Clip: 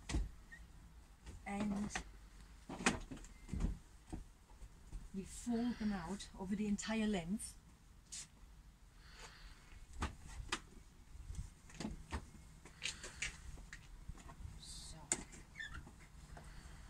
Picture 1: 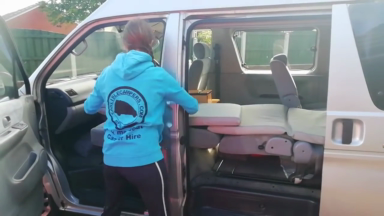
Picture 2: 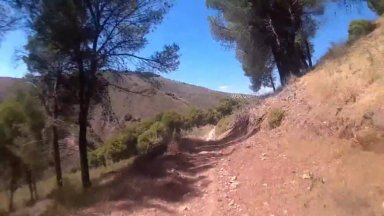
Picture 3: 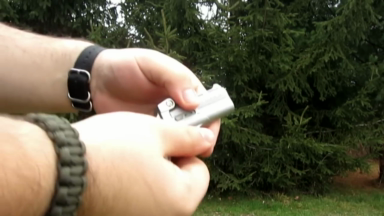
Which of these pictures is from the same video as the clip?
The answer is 1